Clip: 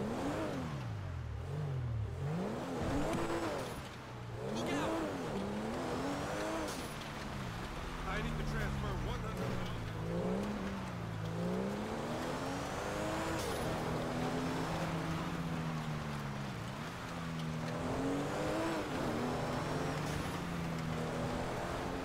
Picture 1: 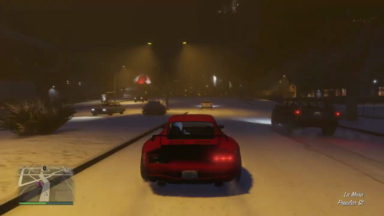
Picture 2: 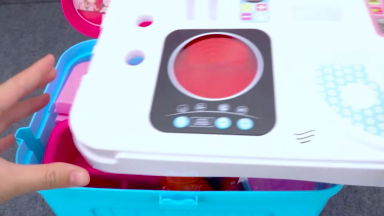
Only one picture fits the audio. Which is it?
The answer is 1